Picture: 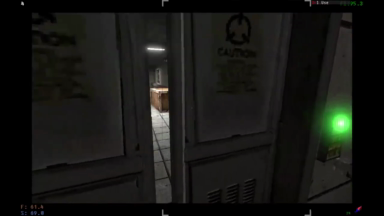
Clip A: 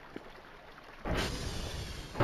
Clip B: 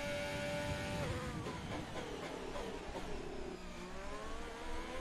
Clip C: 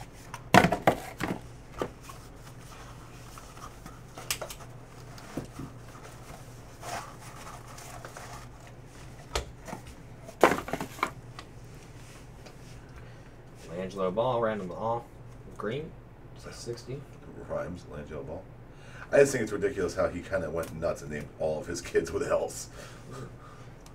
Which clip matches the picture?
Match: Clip A